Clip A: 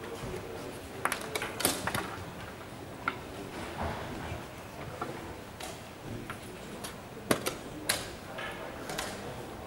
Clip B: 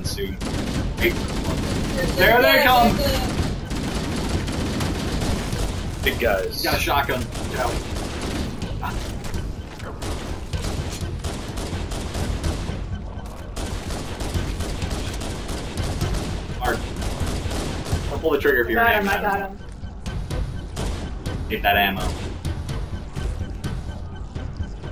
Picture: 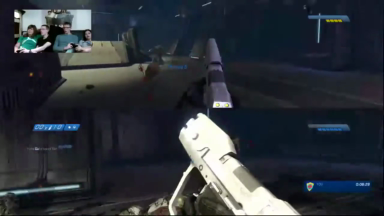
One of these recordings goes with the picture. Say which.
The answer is B